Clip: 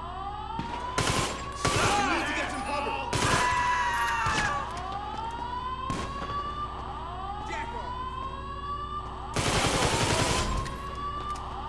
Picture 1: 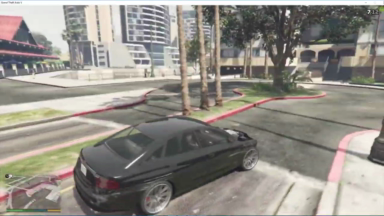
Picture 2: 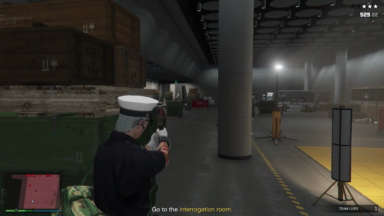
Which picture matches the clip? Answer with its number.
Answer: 2